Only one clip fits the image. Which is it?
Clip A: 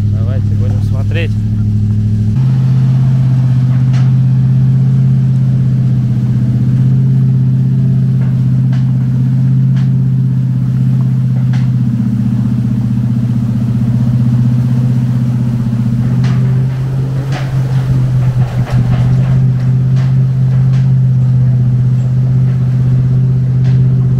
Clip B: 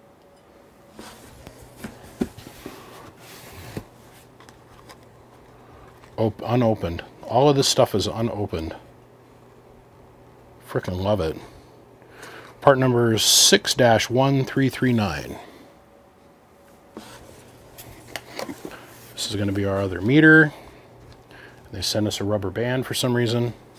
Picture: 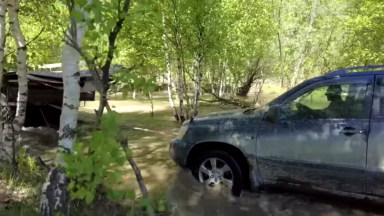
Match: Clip A